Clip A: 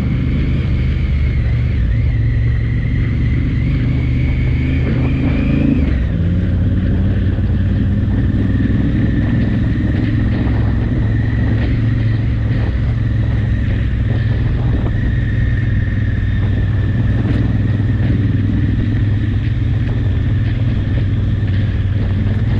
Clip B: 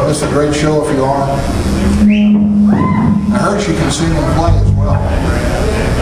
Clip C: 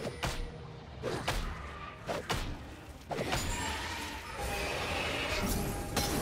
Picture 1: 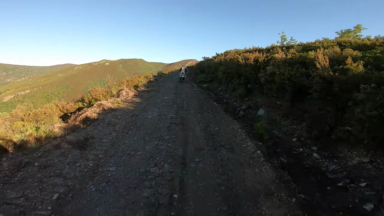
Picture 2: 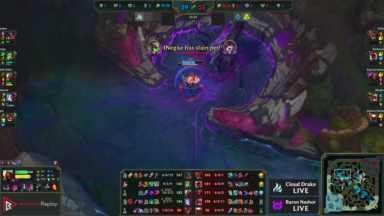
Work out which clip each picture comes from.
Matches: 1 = A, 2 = C